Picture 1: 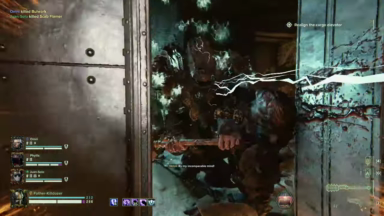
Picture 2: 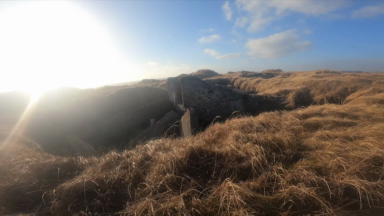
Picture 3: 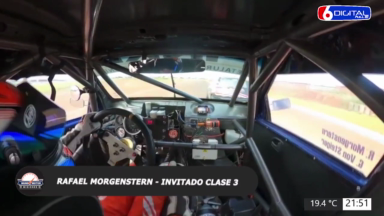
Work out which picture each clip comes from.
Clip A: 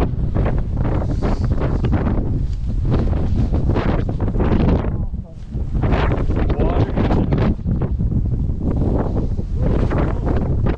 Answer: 2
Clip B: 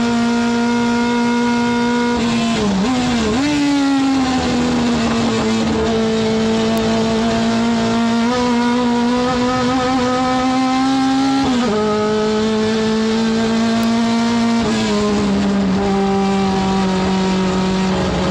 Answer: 3